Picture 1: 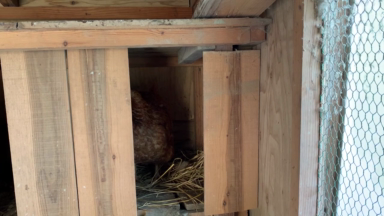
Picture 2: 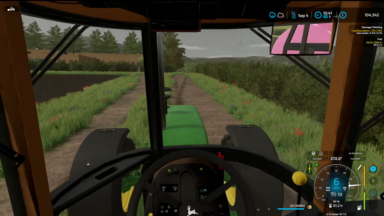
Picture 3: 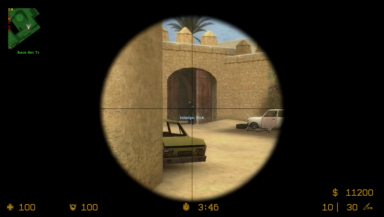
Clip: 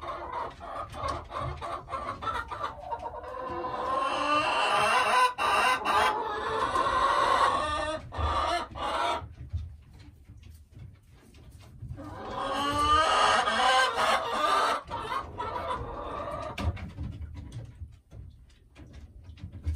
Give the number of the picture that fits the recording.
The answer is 1